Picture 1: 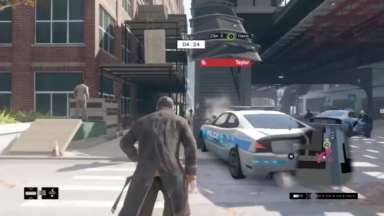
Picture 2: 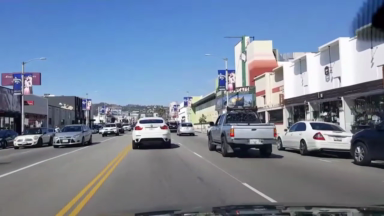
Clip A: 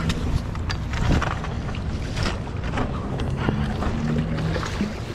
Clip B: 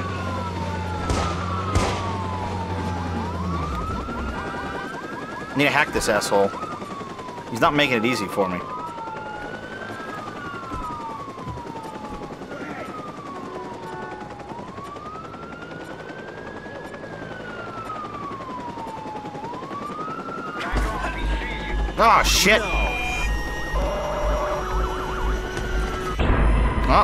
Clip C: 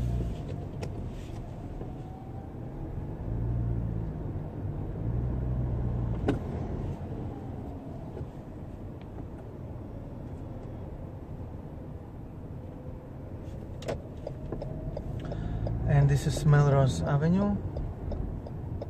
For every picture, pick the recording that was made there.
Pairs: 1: B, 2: C